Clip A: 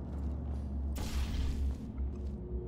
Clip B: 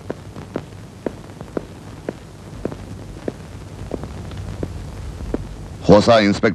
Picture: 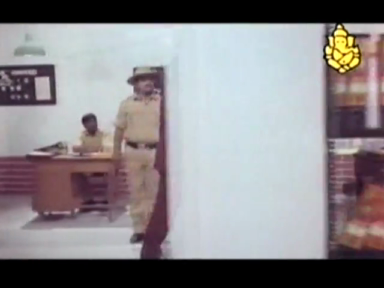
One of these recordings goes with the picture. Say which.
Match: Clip B